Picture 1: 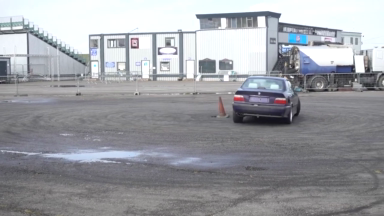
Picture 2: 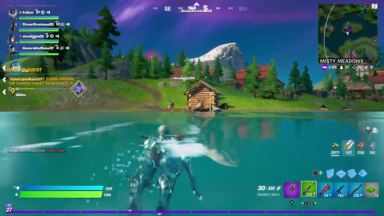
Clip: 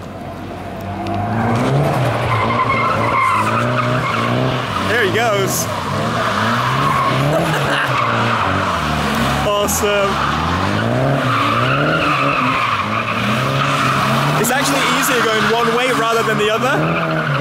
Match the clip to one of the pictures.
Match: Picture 1